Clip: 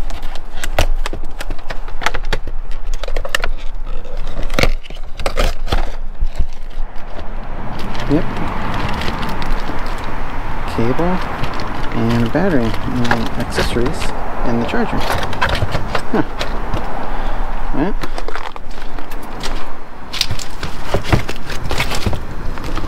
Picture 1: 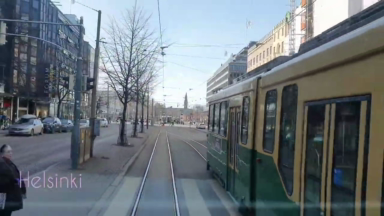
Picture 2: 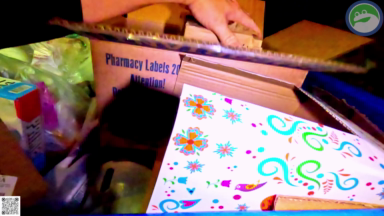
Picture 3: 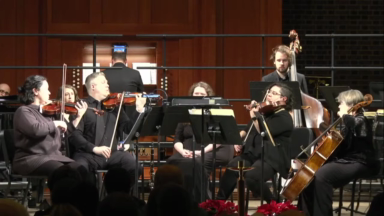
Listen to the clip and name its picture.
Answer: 2